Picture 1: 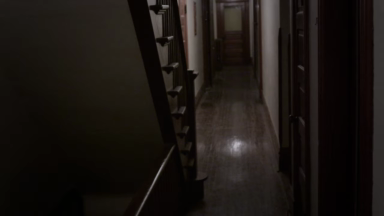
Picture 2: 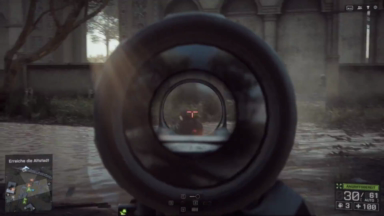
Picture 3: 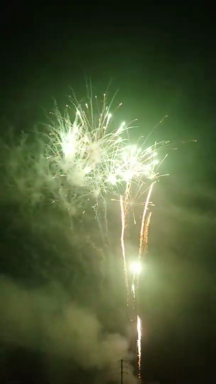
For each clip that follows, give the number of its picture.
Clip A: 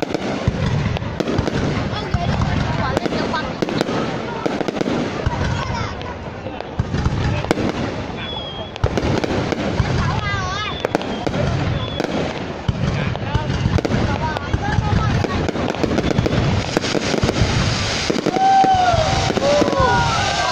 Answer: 3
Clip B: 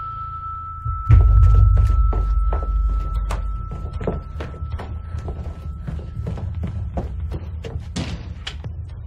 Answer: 1